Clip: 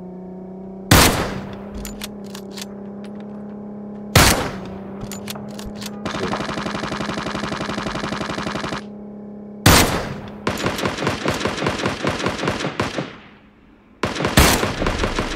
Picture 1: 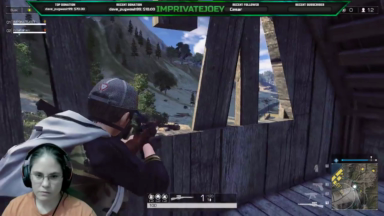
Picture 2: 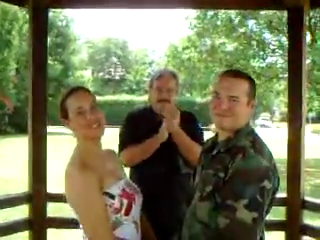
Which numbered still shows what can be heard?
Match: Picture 1